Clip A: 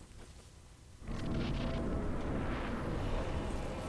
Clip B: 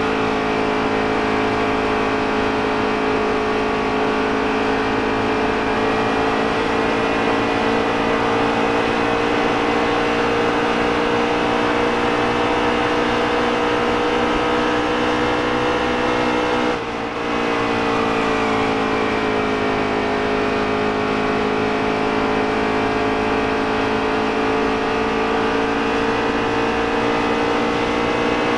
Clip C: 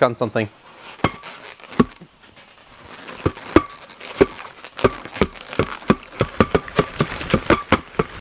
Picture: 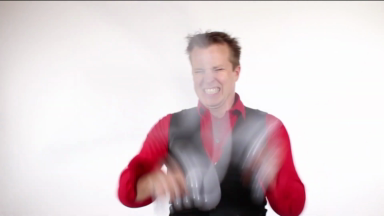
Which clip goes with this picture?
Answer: C